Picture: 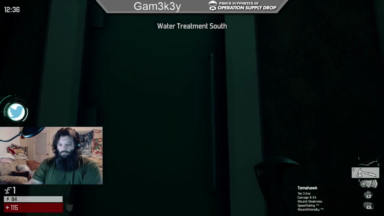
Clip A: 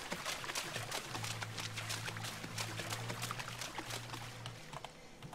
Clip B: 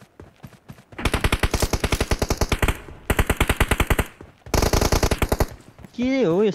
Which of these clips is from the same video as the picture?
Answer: A